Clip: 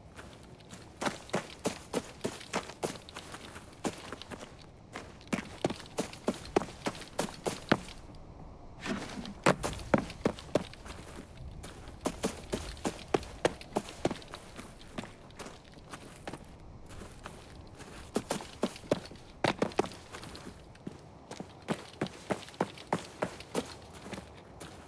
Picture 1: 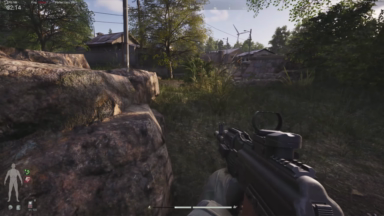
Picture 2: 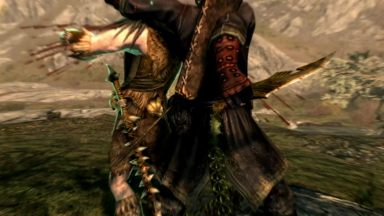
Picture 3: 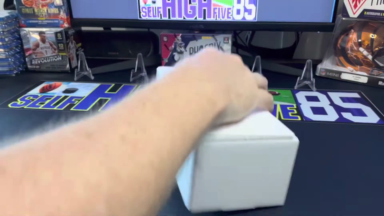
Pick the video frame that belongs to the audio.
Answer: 1